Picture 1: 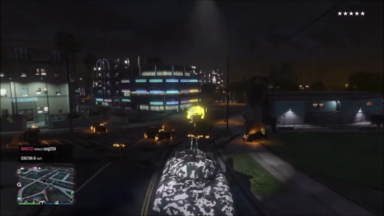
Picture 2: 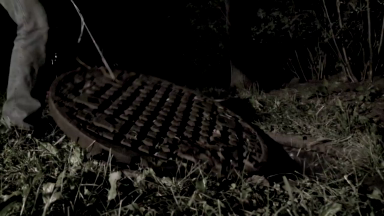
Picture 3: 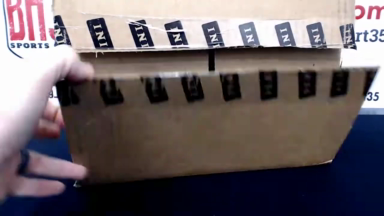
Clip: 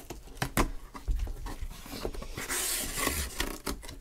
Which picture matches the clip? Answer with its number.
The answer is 3